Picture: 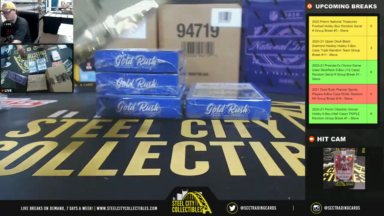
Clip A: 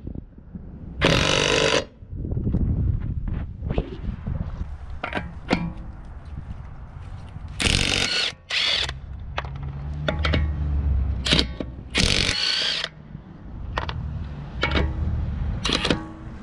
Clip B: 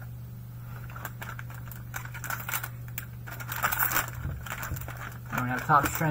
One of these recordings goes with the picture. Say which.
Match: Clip B